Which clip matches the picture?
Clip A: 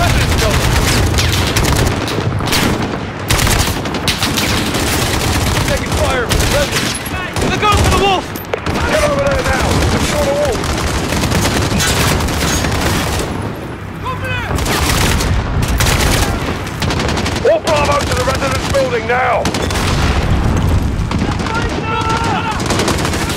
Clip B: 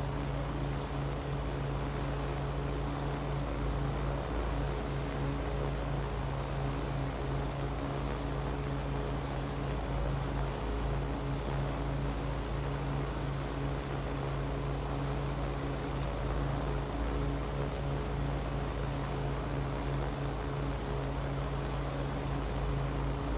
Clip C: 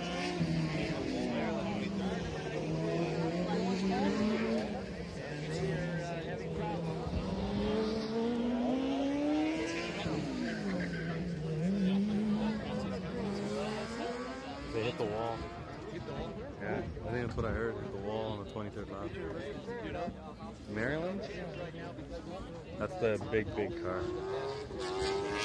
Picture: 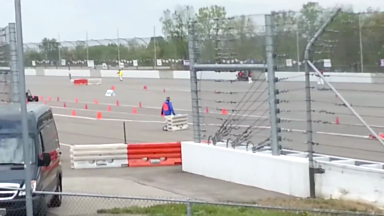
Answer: C